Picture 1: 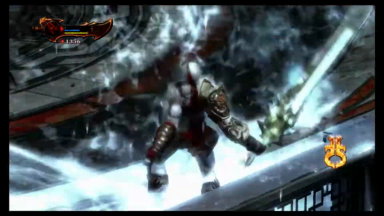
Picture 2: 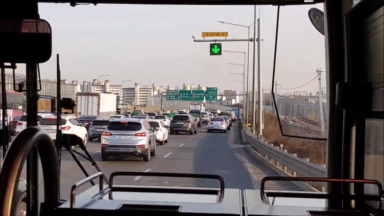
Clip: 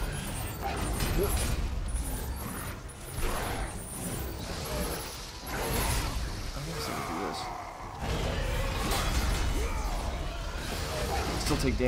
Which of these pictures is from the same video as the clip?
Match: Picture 1